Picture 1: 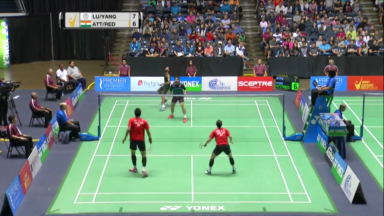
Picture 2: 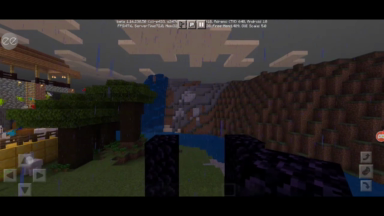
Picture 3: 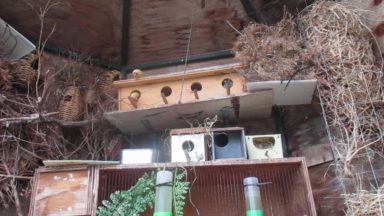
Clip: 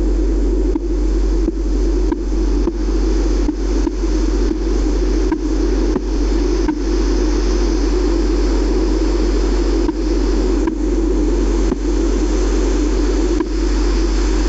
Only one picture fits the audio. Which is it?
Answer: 2